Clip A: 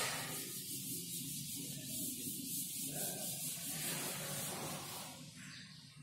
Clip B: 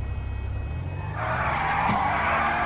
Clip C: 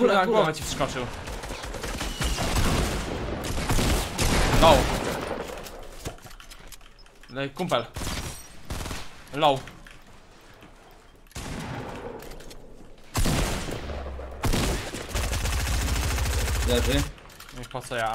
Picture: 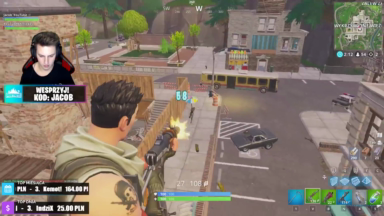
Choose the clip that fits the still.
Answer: C